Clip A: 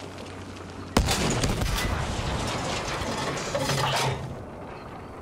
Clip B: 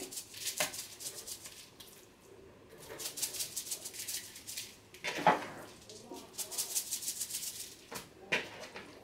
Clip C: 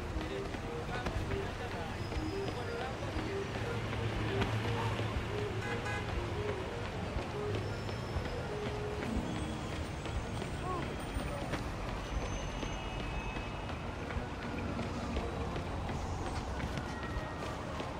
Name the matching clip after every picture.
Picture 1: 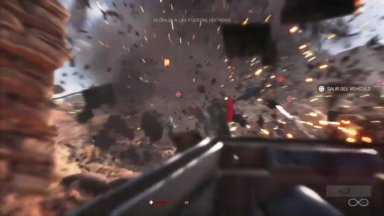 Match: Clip A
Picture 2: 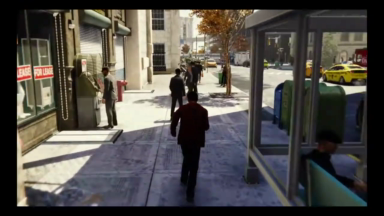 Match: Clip C